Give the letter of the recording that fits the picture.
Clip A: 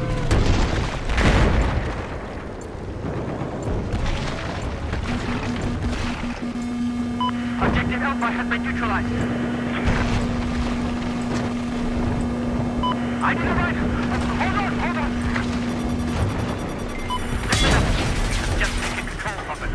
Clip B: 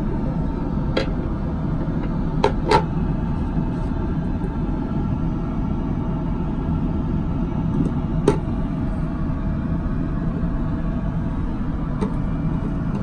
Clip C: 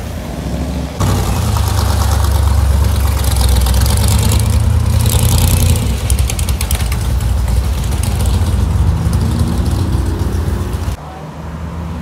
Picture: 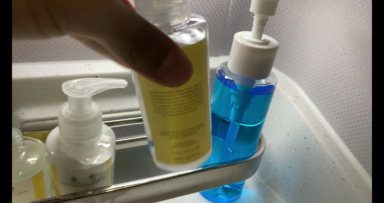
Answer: B